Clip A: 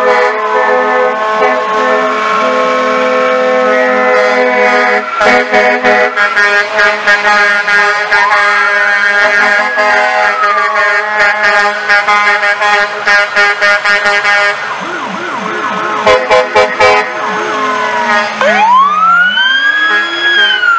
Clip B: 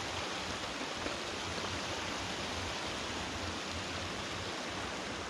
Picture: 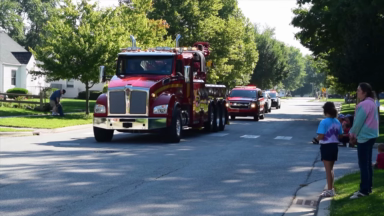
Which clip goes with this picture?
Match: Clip A